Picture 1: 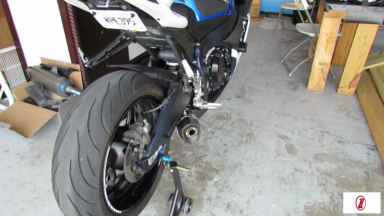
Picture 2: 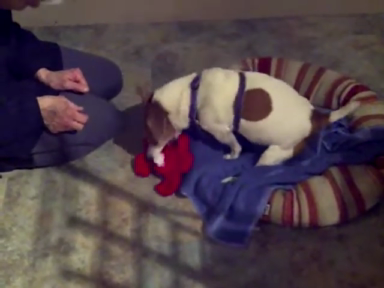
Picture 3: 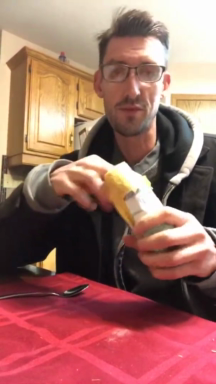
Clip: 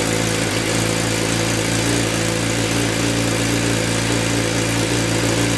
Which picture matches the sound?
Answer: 1